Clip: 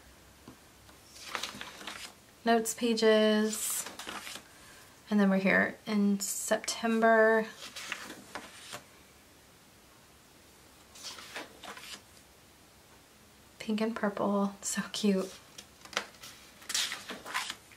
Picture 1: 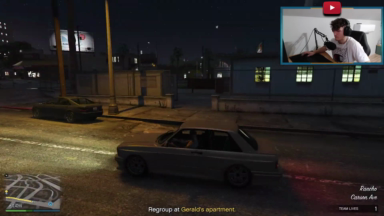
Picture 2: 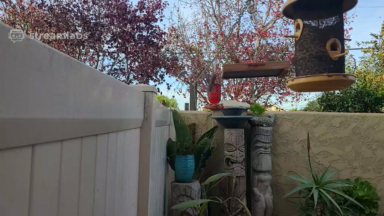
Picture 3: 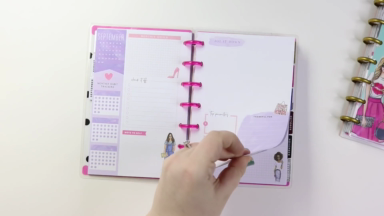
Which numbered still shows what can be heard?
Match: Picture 3